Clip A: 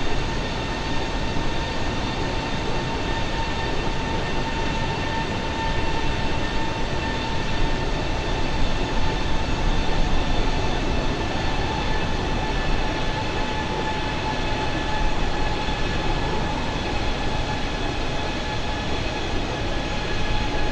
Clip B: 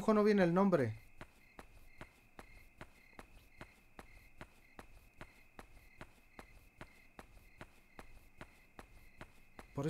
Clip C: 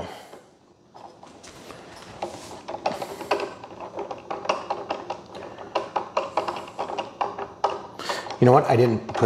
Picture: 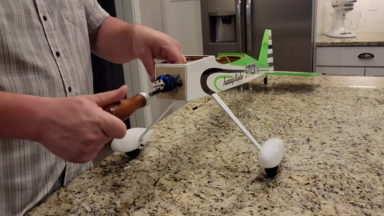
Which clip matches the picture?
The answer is C